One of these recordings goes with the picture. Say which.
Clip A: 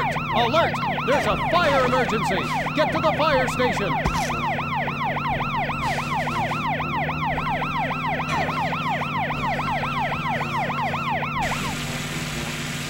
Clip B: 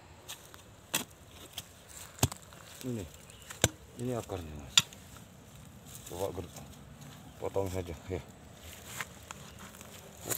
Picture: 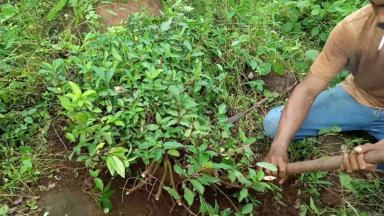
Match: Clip B